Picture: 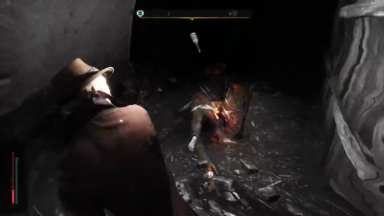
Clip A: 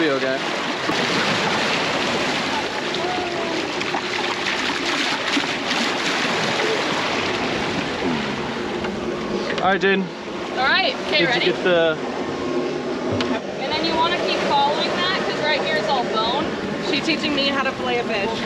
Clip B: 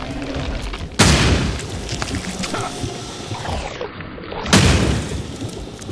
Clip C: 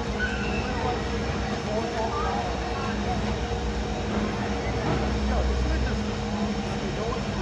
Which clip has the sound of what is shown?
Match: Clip B